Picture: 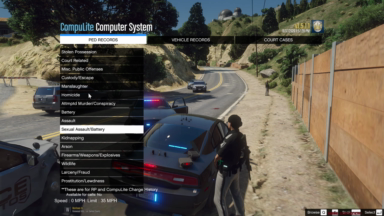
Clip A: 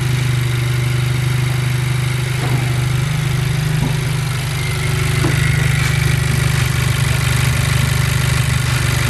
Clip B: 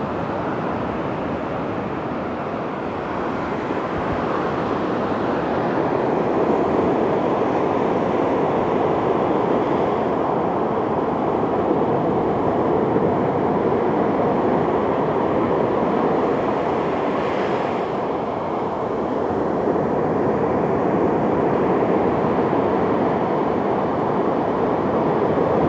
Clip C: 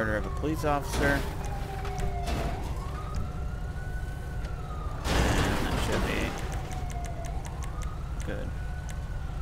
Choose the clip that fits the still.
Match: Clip C